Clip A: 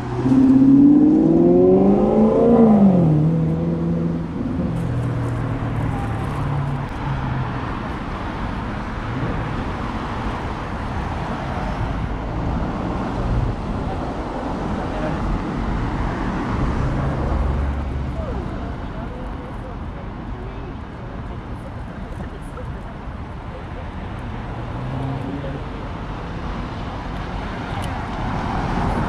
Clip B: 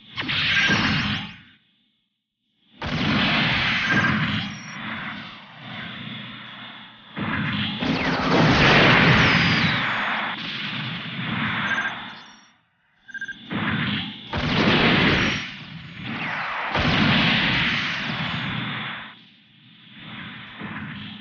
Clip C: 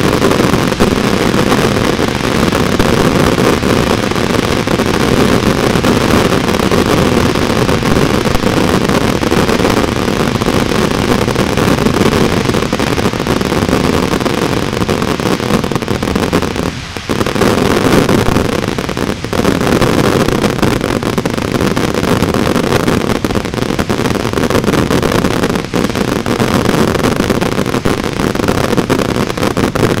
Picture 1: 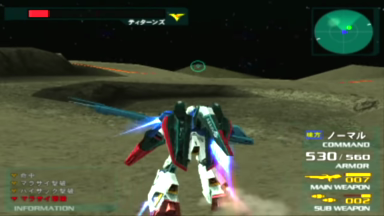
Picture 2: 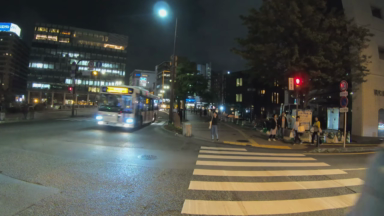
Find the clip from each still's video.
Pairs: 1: B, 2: A